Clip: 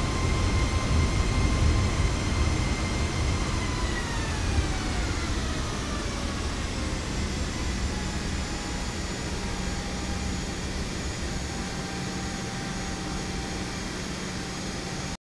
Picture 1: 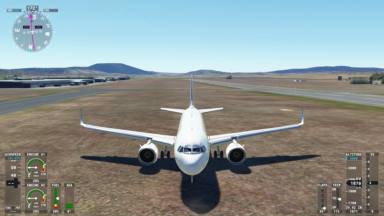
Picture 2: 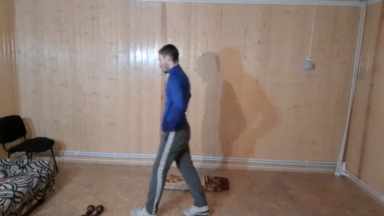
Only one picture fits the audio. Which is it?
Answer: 1